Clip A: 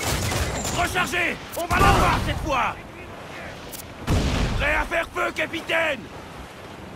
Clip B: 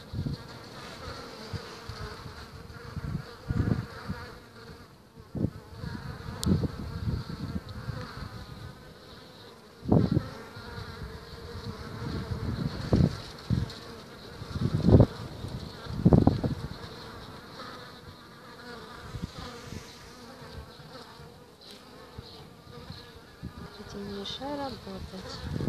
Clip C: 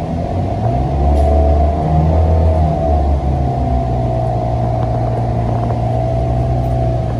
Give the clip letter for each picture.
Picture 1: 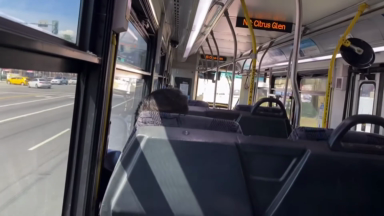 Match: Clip C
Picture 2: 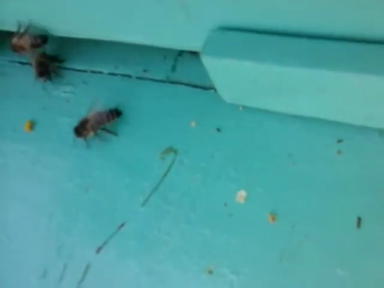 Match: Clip B